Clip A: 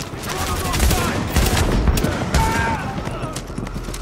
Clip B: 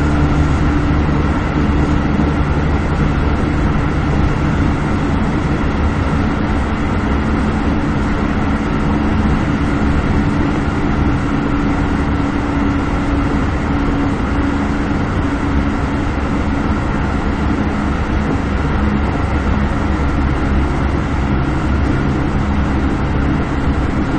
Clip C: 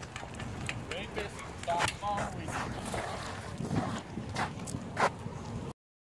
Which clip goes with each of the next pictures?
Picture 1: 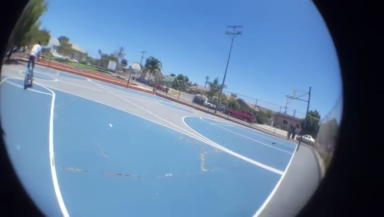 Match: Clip C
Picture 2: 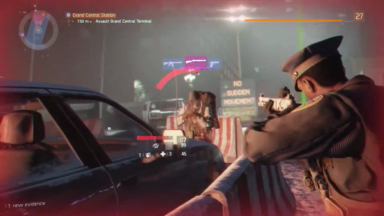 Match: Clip A